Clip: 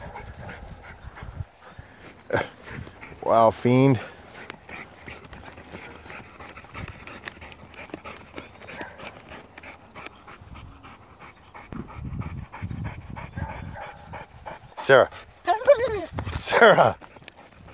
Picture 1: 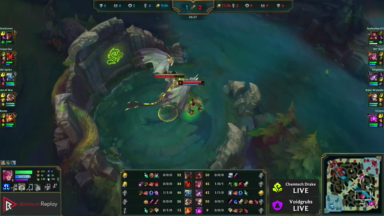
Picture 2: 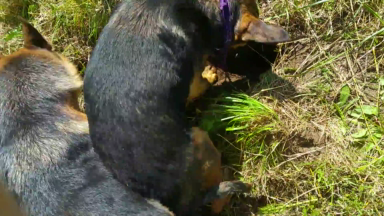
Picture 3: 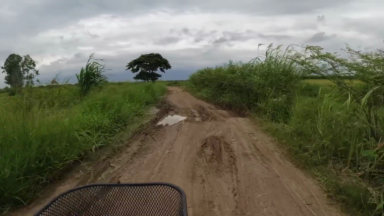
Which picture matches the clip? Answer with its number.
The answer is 2